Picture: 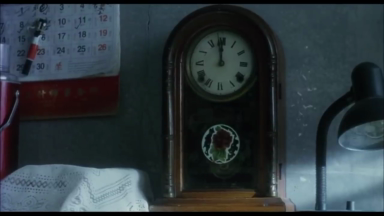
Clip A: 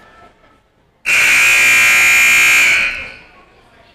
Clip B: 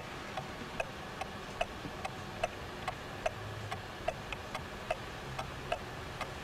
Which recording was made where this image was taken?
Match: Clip B